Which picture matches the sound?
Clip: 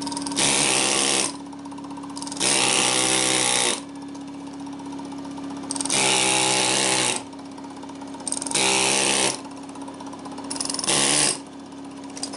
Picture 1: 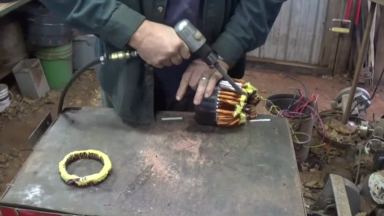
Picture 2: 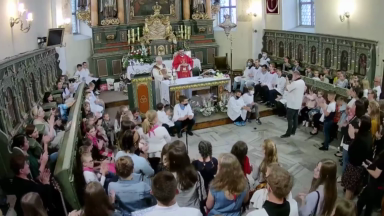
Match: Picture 1